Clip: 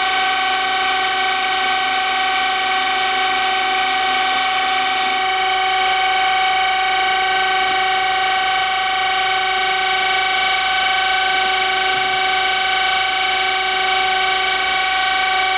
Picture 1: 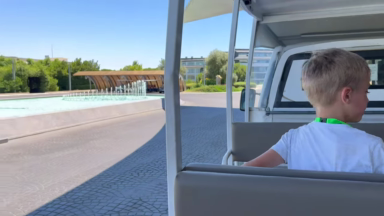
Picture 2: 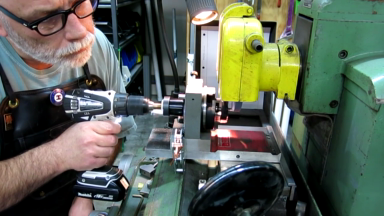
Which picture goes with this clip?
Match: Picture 2